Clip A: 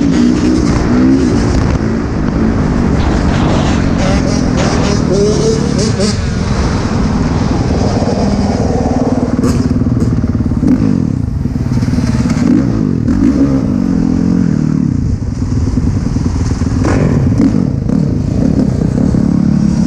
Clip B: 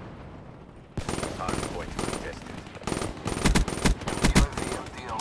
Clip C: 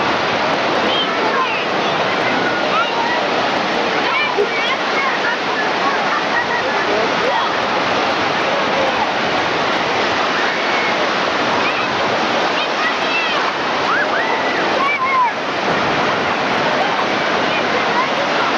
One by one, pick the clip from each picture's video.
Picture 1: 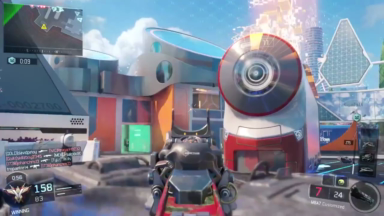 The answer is B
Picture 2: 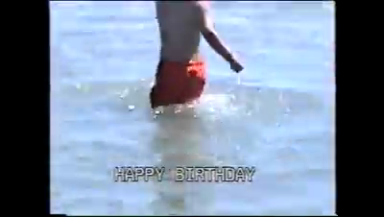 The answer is C